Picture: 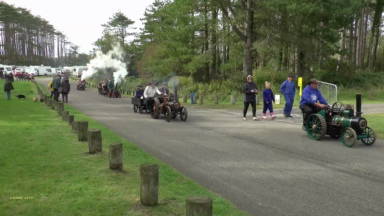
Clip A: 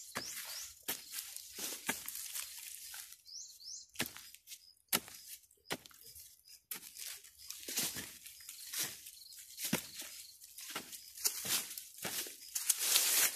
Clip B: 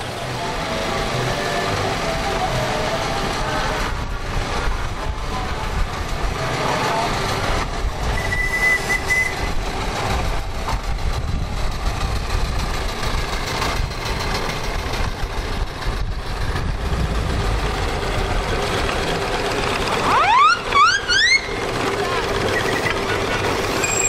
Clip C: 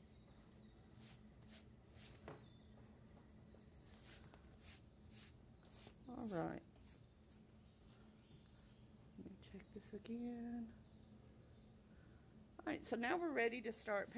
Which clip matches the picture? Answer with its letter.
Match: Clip B